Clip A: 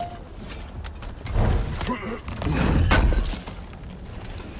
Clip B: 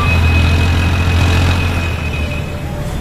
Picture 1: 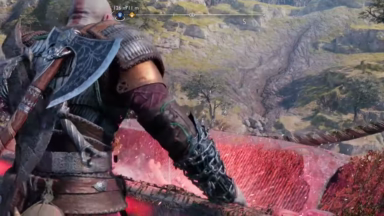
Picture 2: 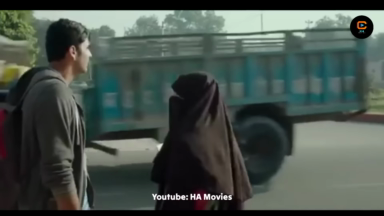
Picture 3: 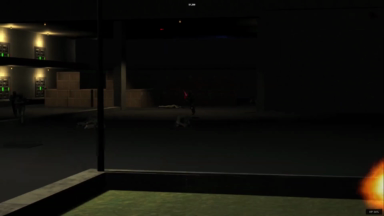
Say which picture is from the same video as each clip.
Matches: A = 1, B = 2